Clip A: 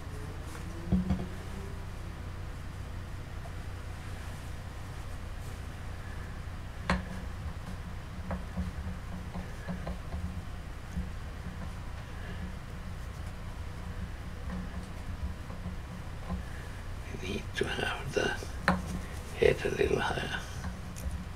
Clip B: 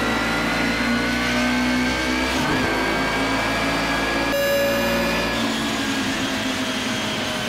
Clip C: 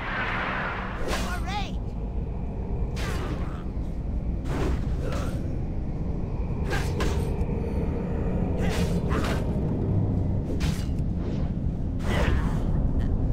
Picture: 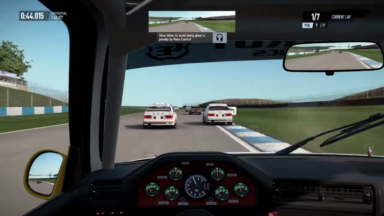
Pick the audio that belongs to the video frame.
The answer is B